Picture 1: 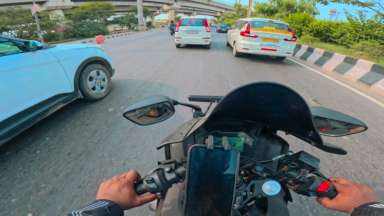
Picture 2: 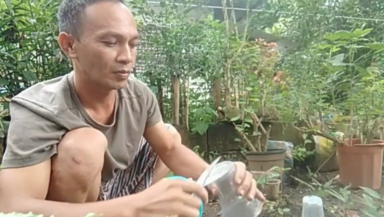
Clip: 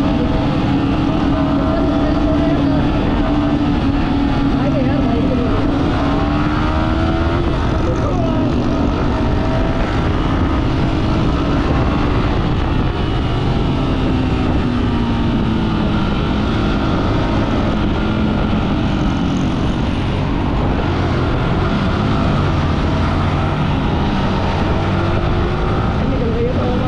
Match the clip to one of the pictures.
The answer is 1